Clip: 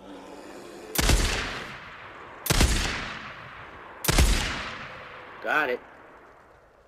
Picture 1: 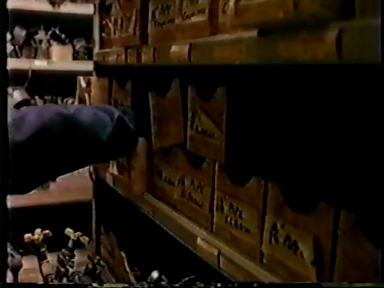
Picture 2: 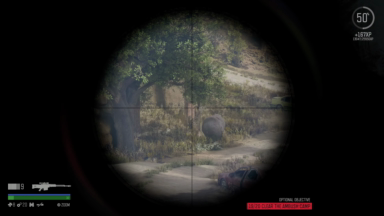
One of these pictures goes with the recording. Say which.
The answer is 2